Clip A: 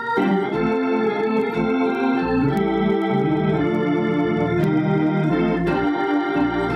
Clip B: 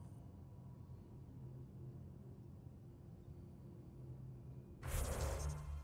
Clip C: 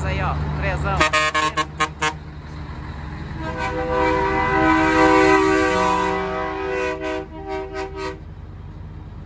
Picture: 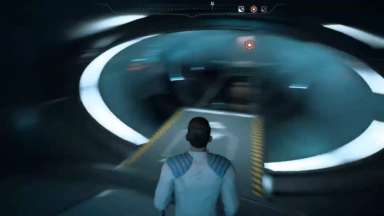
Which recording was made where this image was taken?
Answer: B